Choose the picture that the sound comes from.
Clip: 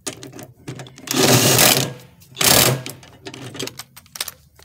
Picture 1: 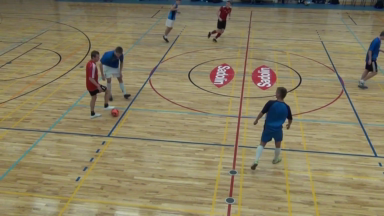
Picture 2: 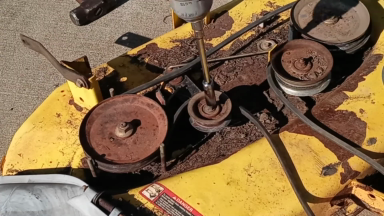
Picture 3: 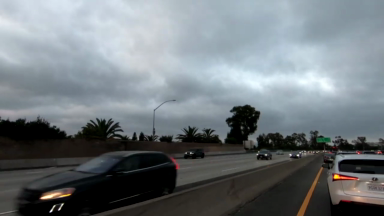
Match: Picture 2